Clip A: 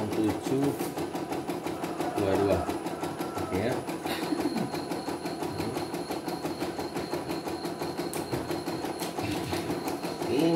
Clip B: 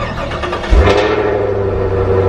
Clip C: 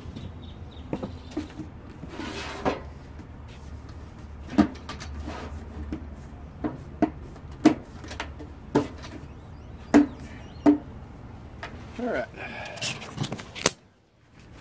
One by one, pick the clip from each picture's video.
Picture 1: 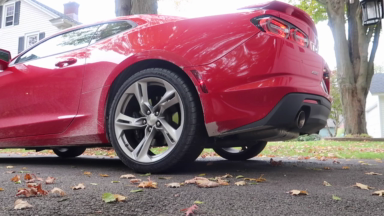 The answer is B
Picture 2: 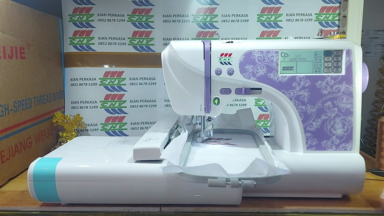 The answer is A